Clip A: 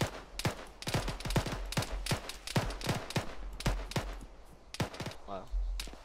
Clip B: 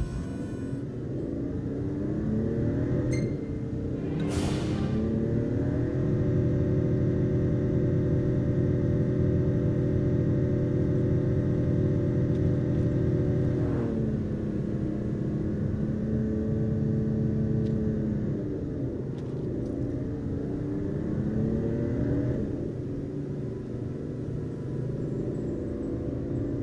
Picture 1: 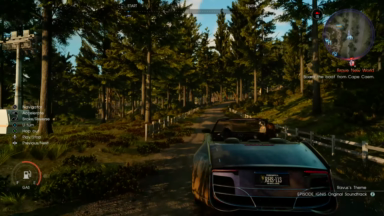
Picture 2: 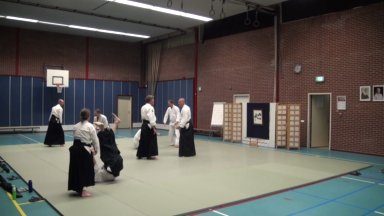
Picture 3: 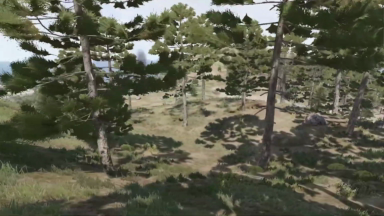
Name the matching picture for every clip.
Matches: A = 3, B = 1